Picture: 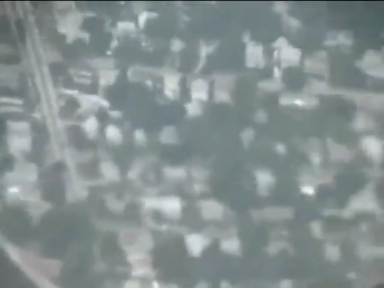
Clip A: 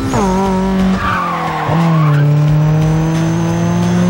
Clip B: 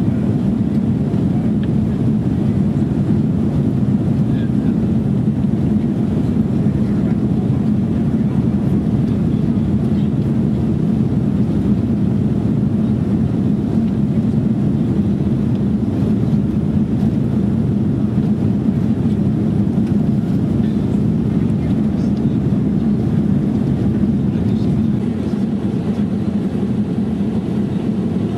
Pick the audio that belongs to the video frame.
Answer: B